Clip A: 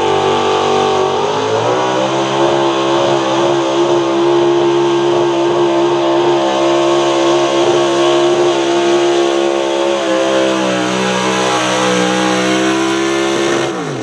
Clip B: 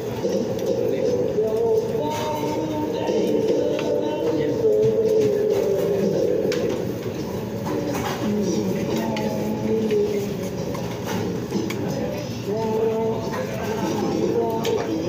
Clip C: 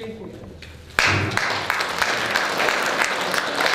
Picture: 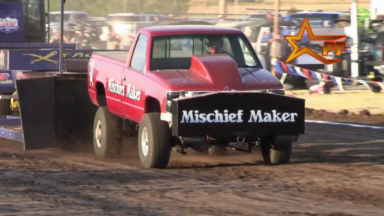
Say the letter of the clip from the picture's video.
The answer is A